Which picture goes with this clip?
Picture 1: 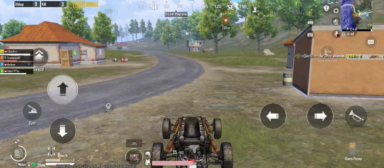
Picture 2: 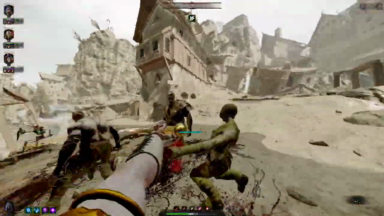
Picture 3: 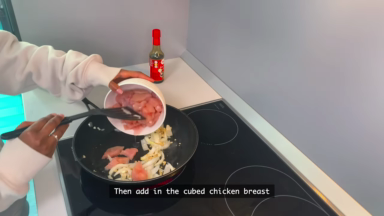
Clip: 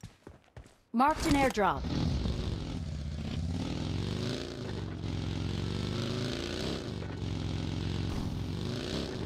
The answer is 1